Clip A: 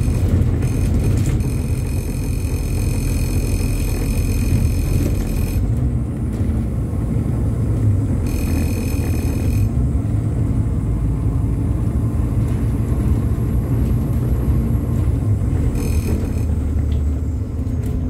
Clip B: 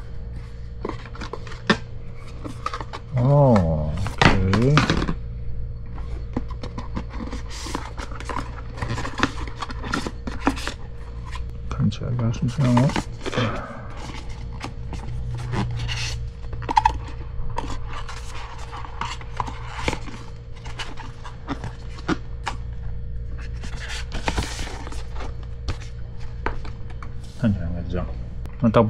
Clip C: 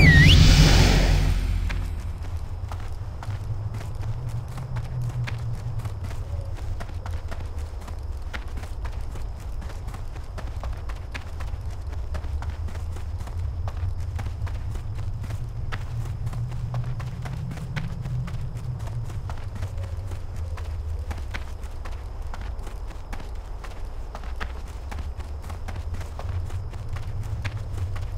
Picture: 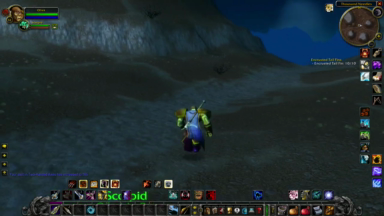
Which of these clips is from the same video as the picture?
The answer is C